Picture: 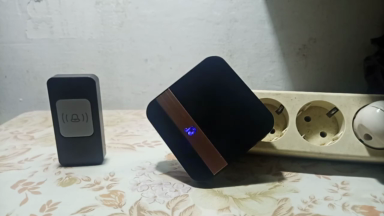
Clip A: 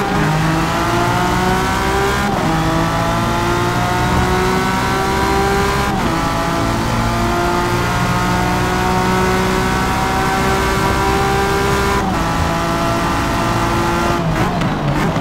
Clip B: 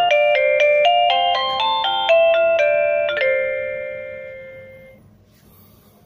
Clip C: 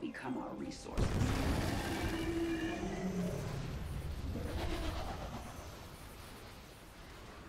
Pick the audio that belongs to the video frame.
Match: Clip B